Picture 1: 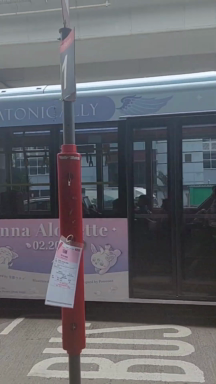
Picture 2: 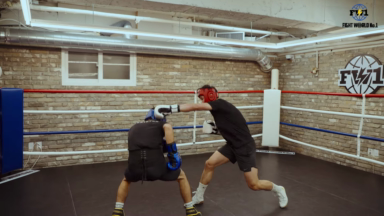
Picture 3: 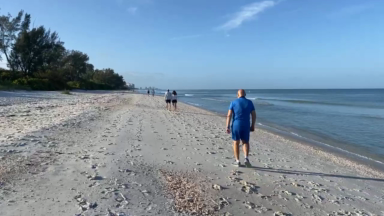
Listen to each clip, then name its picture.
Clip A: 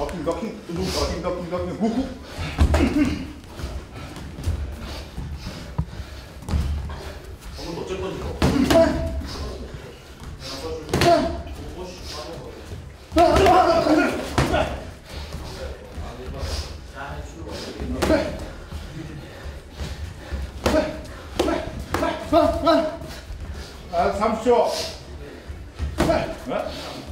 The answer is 2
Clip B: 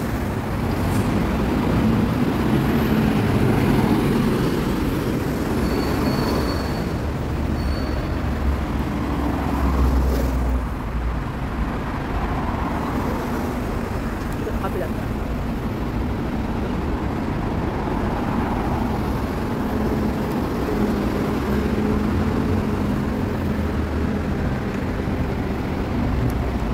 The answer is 1